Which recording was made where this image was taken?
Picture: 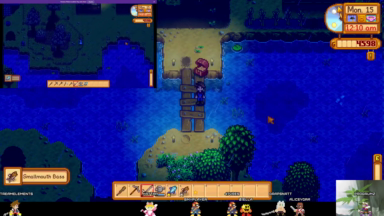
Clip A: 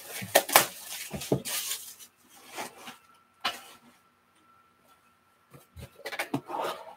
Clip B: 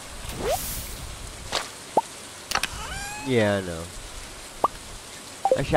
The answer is B